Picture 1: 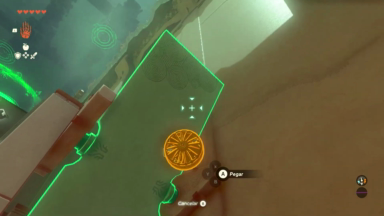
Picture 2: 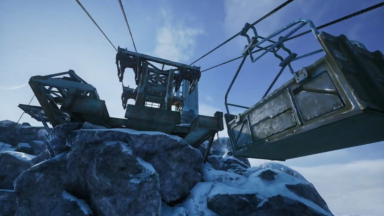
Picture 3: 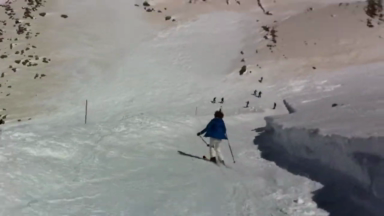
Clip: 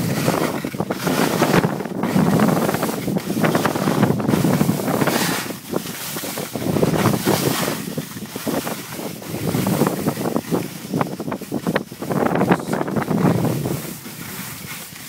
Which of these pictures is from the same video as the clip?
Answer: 3